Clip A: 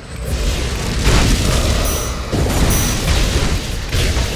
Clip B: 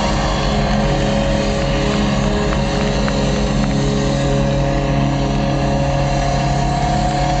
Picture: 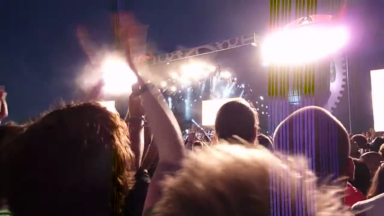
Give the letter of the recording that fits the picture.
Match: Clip B